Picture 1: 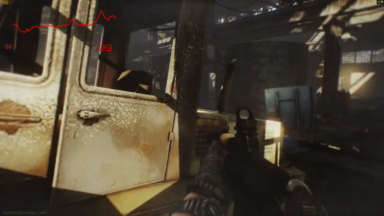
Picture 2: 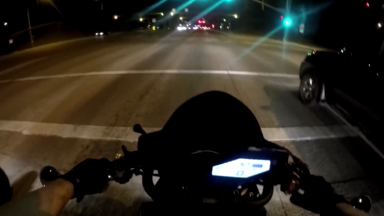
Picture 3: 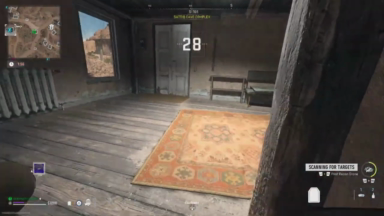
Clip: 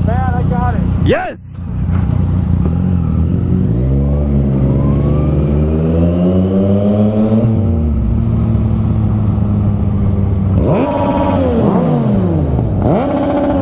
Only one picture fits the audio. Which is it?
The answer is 2